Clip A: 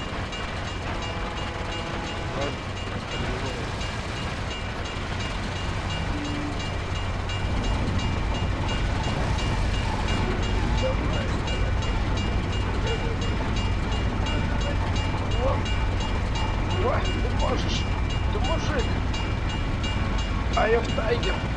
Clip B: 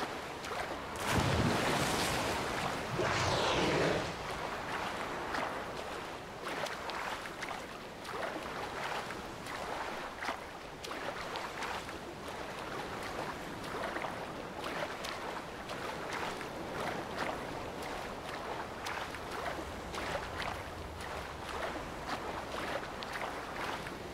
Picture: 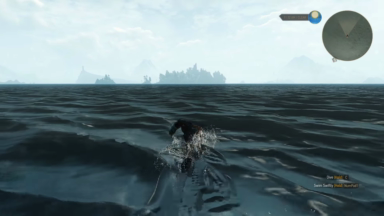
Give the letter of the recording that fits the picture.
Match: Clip B